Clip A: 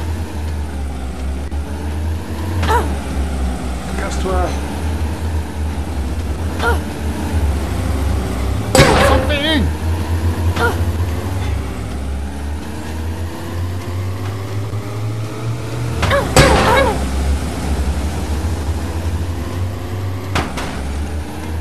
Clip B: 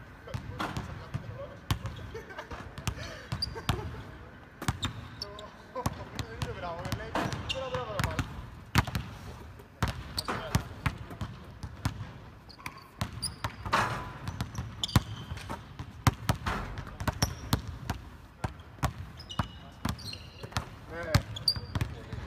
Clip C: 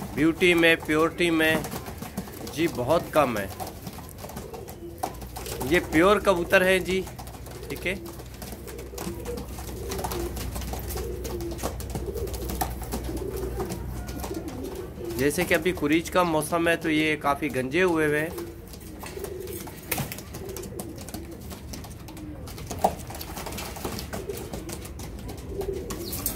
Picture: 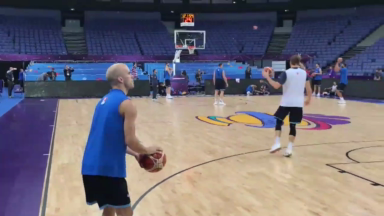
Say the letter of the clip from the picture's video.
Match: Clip B